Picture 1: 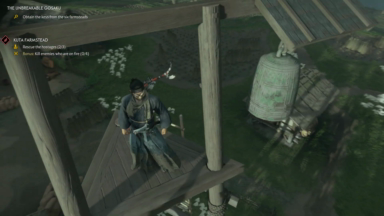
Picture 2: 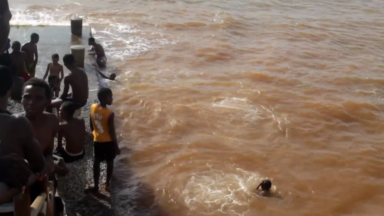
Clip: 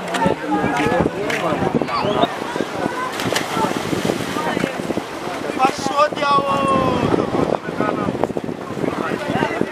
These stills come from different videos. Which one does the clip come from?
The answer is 2